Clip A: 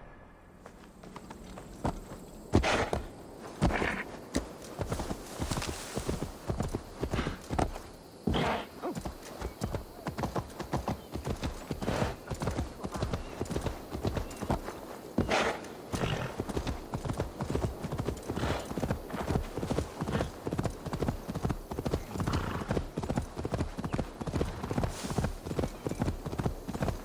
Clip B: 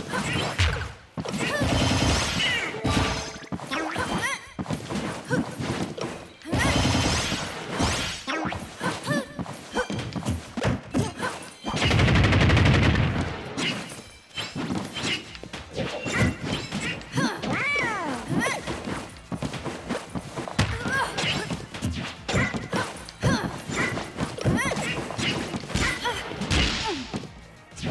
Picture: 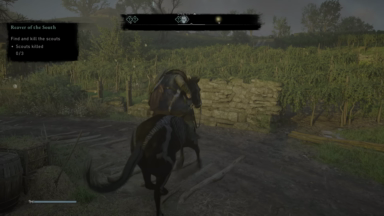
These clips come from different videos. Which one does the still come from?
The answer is A